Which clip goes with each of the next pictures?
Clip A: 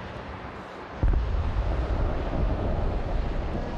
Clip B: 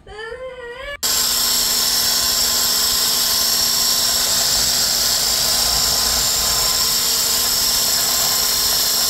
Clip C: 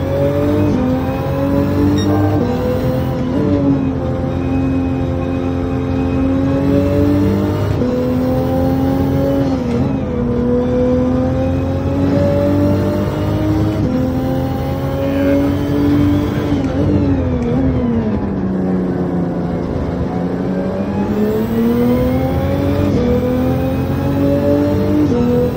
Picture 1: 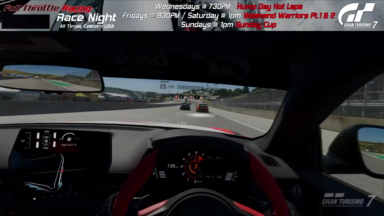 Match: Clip C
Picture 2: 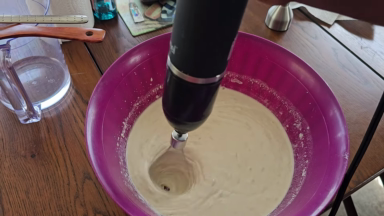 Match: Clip B